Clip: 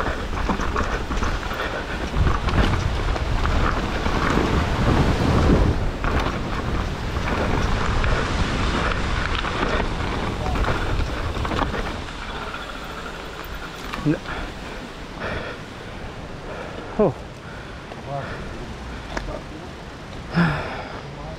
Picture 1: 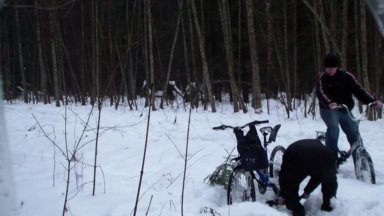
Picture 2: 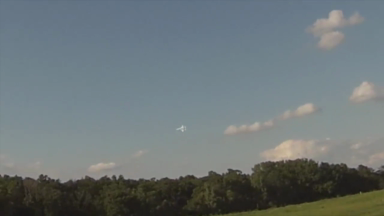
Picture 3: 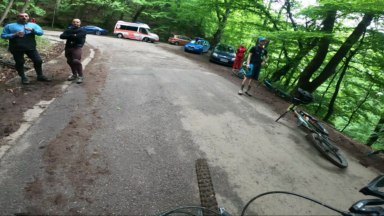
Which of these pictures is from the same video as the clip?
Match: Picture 3